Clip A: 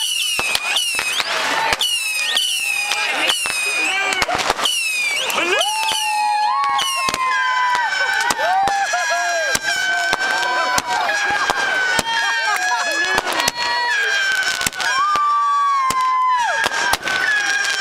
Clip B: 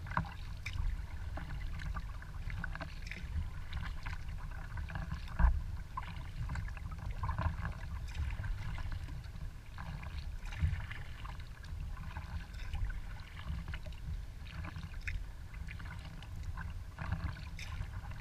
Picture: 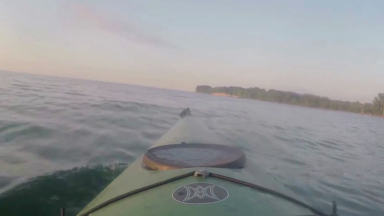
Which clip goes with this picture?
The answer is B